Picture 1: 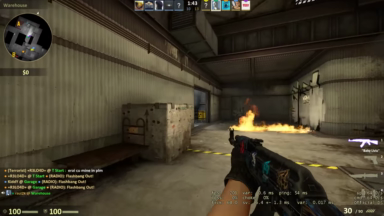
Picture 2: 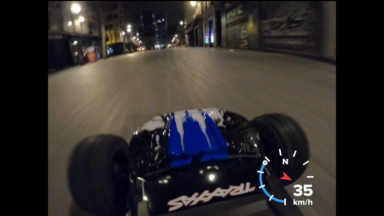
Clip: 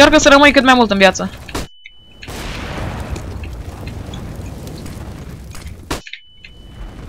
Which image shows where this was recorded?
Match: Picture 1